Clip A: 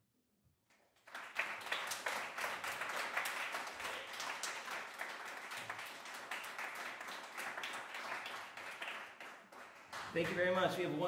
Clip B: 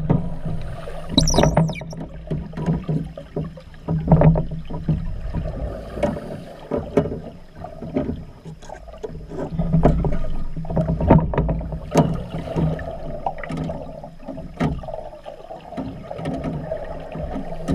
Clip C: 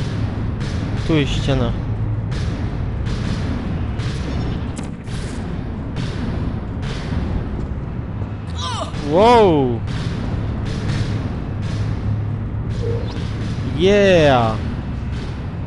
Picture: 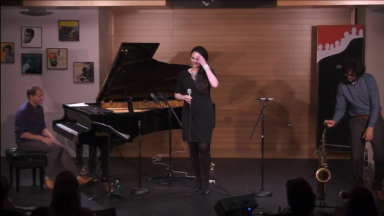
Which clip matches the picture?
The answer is A